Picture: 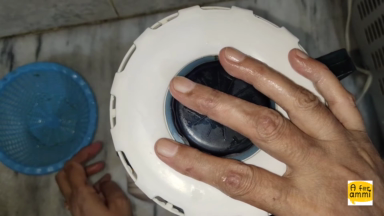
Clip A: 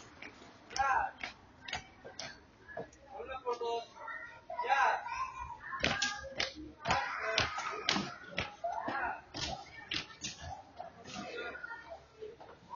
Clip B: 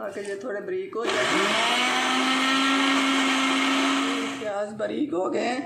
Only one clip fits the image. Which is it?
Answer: B